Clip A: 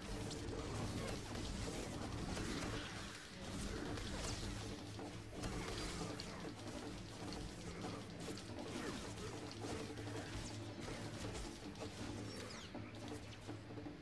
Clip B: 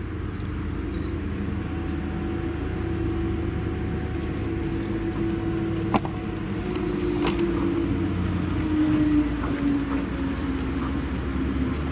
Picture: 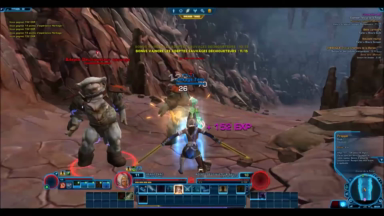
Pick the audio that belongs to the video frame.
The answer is A